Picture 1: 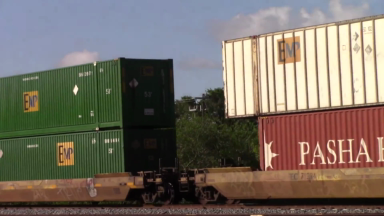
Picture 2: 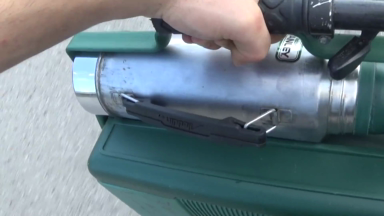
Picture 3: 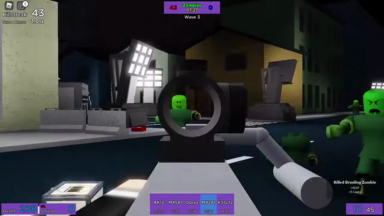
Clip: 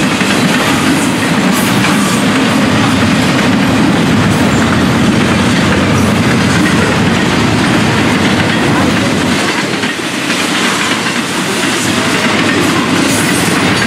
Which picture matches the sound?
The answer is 1